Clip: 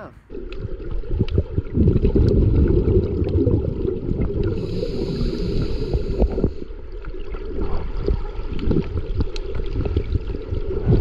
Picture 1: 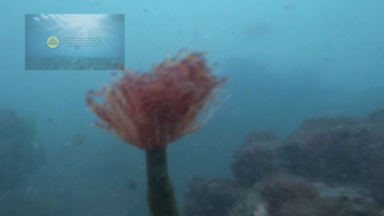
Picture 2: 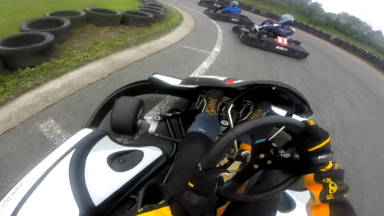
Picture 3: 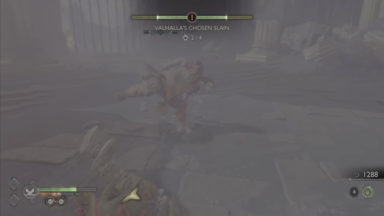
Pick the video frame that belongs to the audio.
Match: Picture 1